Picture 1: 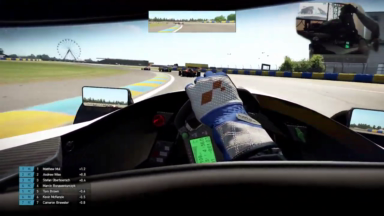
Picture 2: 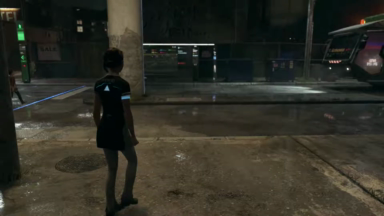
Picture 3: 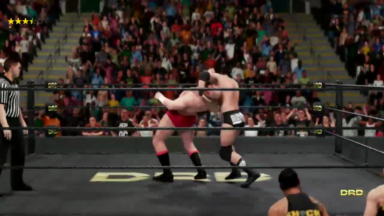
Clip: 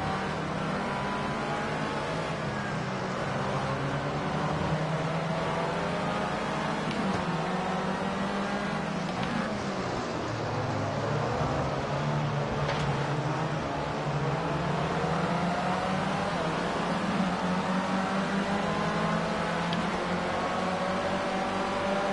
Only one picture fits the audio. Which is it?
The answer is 1